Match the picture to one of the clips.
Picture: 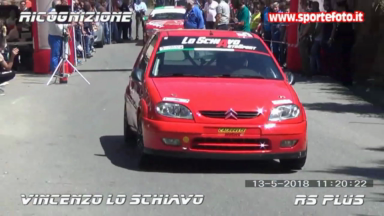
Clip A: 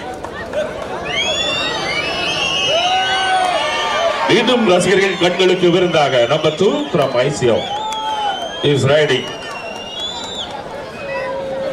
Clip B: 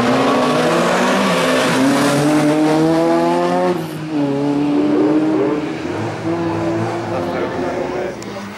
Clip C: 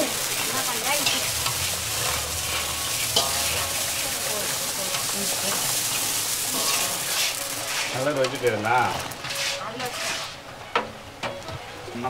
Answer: B